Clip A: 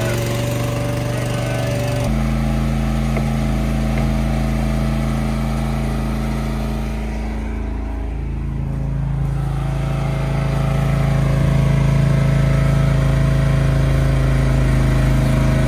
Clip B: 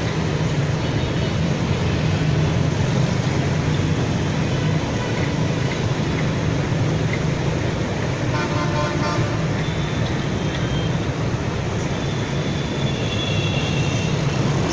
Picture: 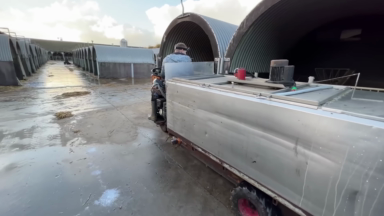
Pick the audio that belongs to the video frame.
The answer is A